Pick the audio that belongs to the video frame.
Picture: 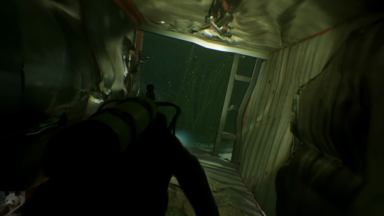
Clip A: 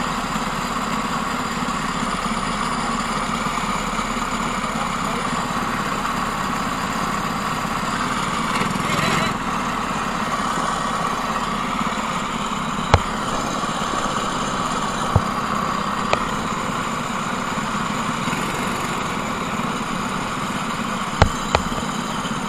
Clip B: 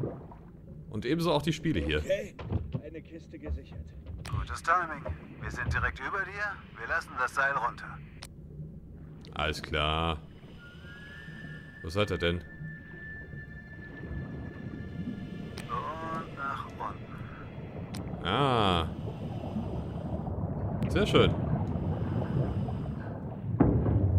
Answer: B